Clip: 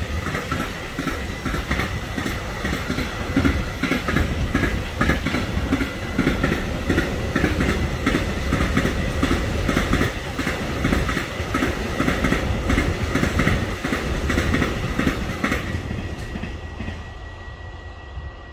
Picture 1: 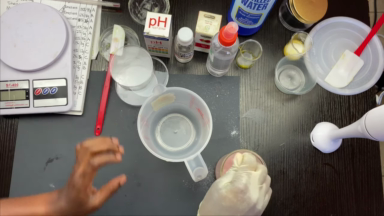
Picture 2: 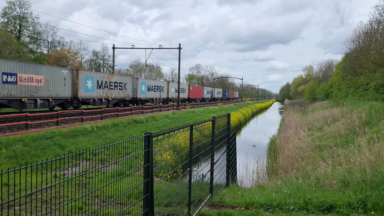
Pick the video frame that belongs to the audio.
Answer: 2